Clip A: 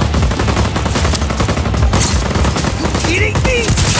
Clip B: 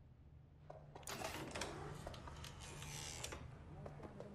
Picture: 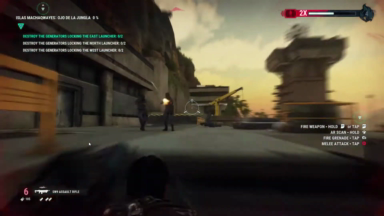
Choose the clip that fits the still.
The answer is A